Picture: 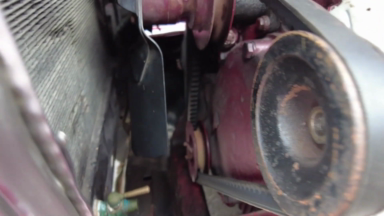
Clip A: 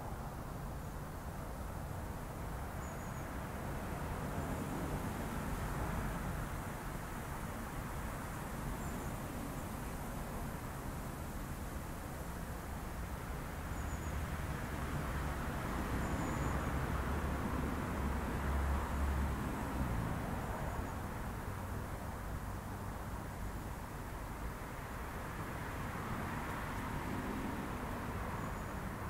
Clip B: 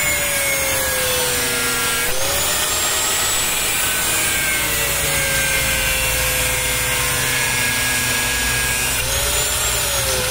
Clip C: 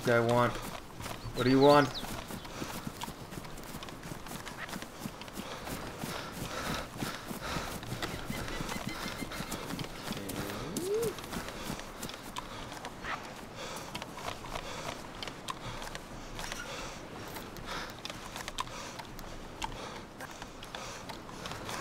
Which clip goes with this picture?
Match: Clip A